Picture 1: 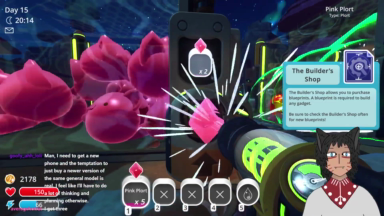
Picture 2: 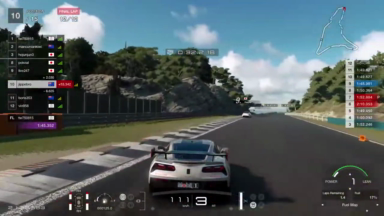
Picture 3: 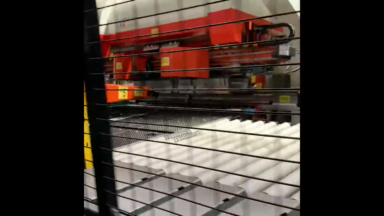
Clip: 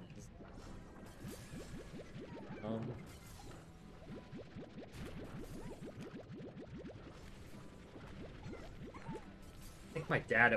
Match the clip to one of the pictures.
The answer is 1